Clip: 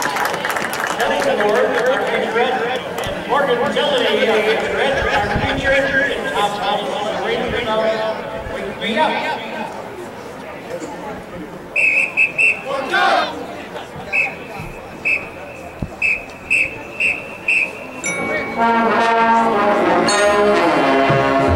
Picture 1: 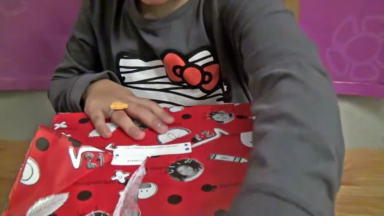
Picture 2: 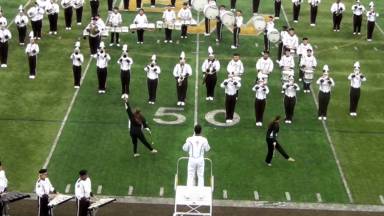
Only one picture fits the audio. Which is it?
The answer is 2